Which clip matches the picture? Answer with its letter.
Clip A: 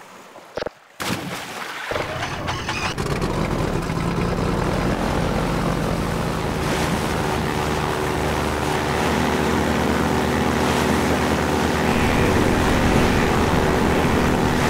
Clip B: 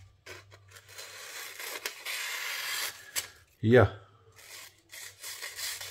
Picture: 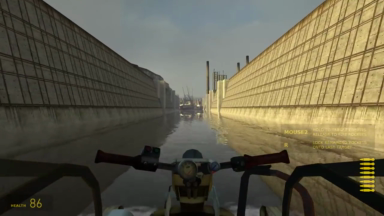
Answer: A